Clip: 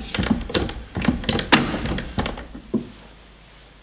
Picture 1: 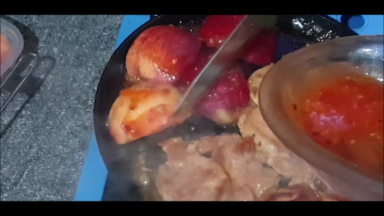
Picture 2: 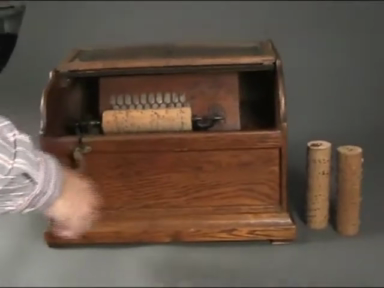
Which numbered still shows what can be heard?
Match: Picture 2